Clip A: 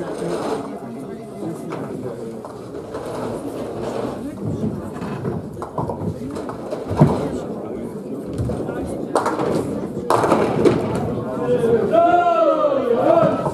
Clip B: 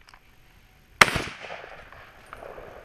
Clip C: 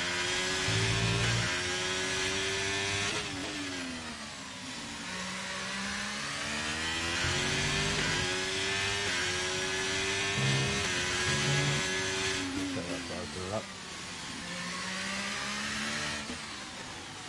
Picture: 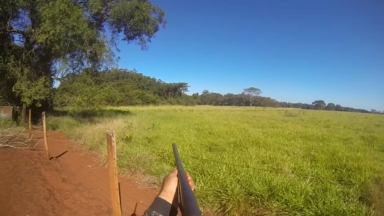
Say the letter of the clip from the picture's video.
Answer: B